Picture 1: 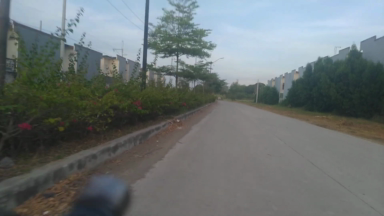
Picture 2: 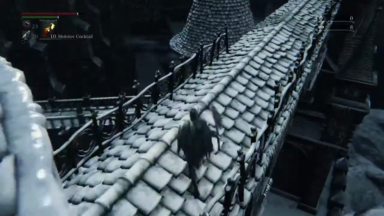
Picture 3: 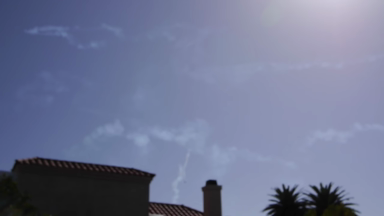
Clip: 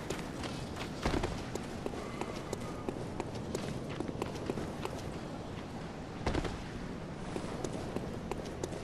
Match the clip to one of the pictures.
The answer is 2